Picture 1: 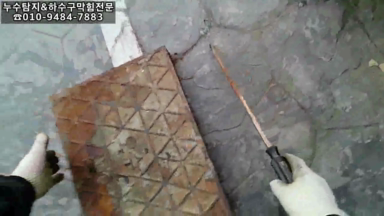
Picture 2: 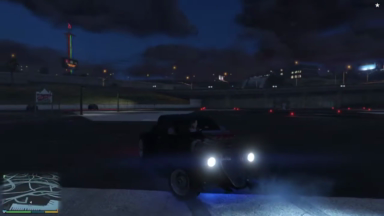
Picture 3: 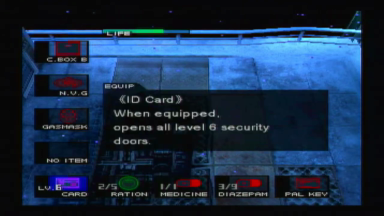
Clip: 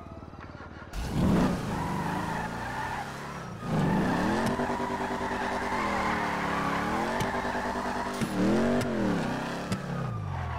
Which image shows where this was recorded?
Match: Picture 2